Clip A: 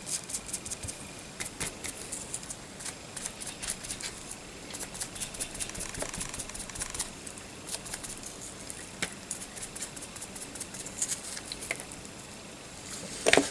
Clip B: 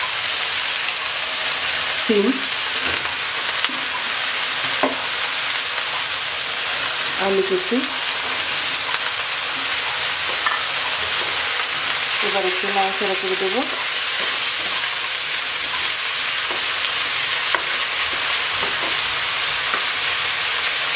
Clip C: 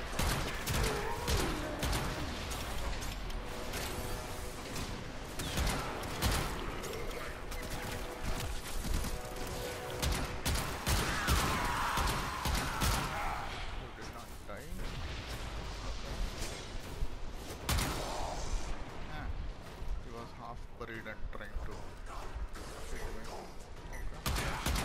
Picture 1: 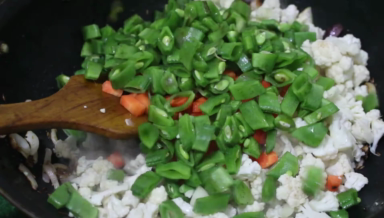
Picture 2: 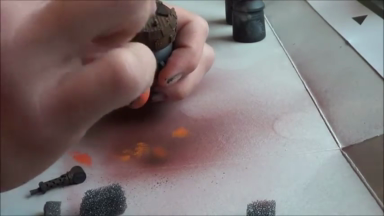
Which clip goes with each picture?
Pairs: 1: B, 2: A